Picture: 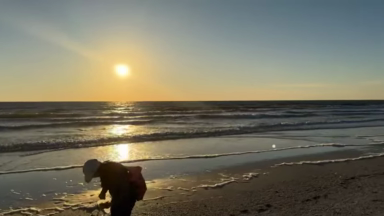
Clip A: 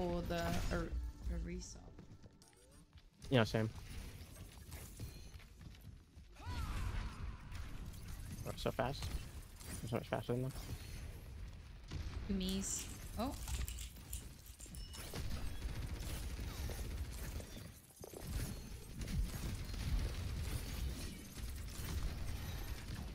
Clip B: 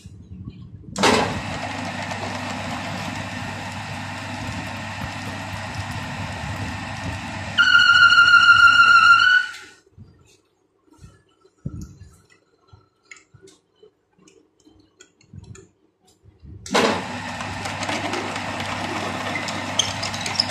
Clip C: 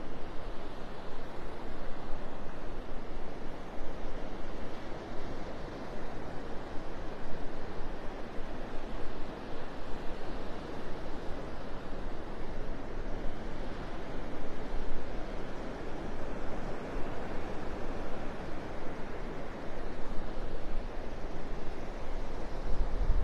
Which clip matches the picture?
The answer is C